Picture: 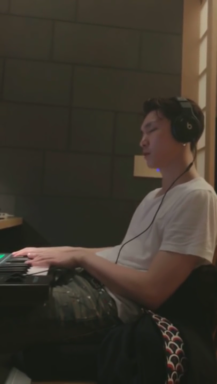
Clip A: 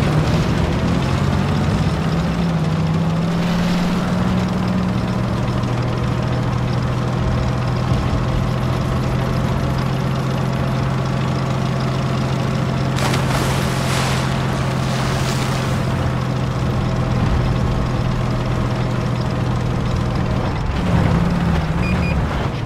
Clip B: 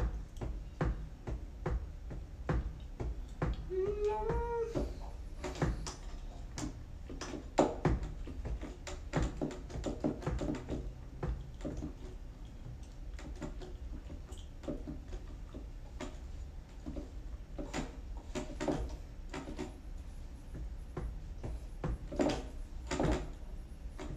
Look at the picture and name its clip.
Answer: B